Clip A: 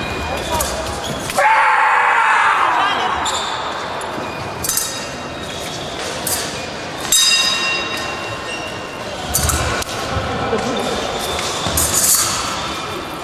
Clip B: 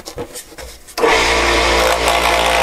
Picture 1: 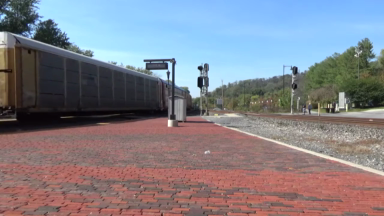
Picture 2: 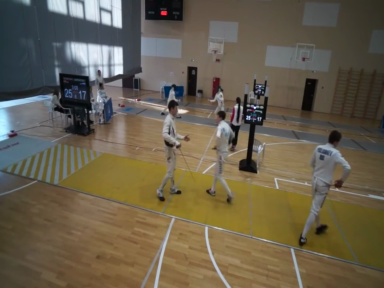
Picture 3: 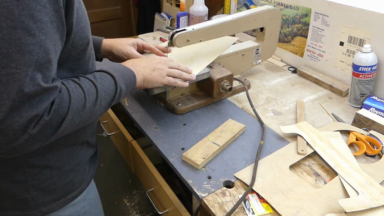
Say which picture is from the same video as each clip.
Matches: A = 2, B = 3